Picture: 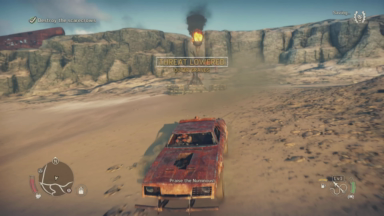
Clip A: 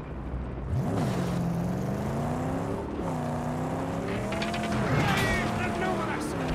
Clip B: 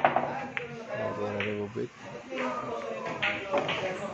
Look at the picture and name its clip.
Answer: A